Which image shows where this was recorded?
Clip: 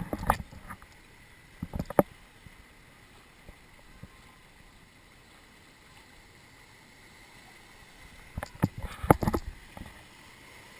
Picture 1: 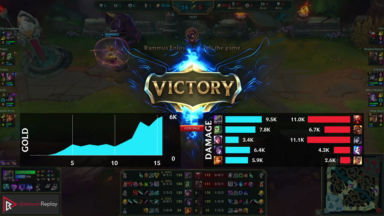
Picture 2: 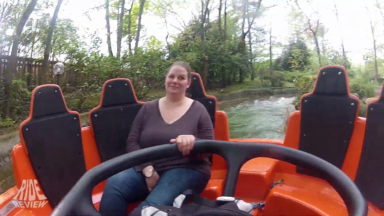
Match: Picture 2